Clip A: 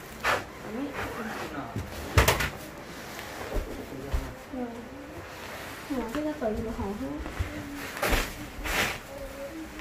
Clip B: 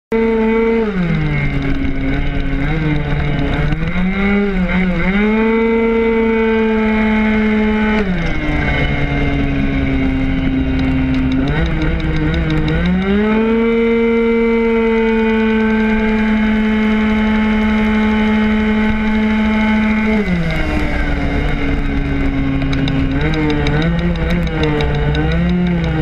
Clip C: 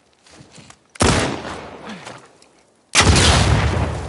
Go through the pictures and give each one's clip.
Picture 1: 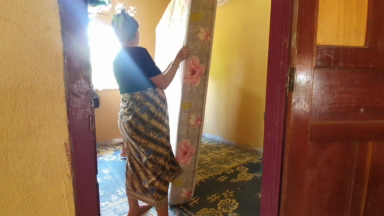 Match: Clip A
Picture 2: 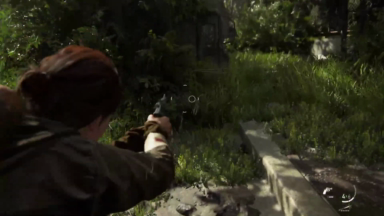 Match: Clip C